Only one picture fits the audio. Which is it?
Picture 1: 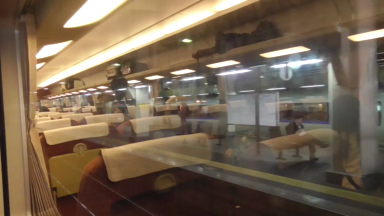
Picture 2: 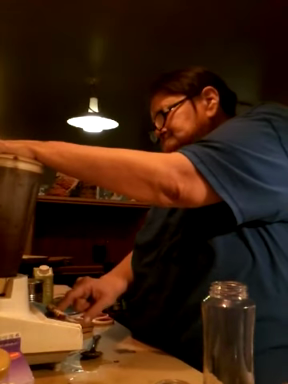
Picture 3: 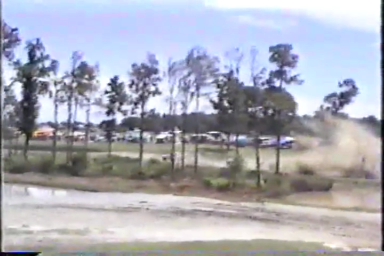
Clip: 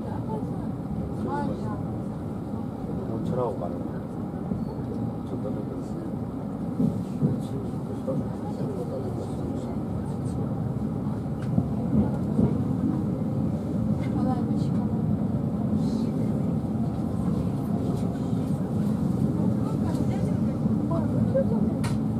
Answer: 1